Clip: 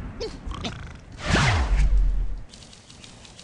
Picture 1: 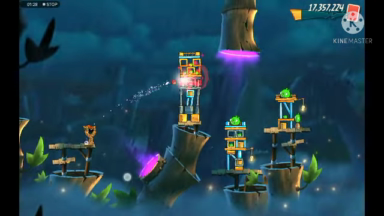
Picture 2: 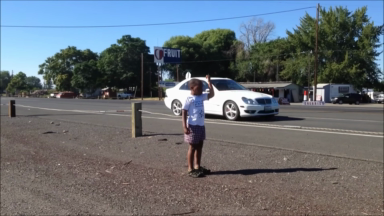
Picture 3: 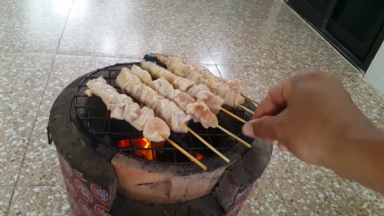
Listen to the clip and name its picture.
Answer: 1